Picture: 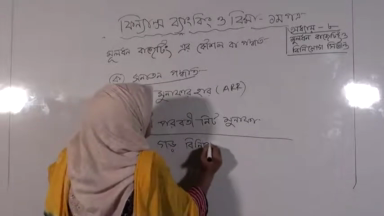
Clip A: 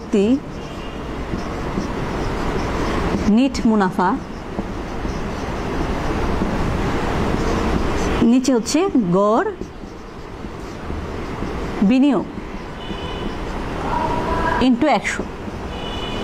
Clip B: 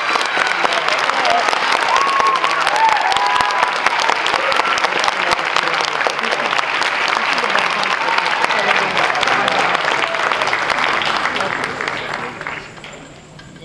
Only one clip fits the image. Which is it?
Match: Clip A